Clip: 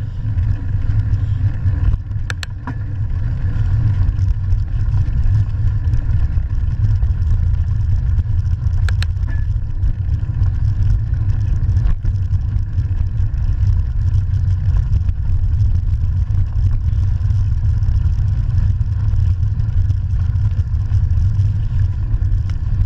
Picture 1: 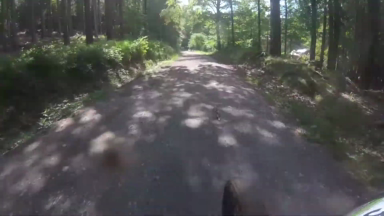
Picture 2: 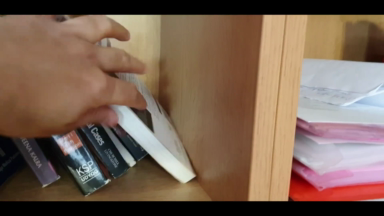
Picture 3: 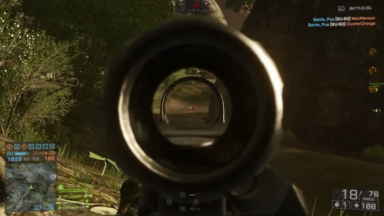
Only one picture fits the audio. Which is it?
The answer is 1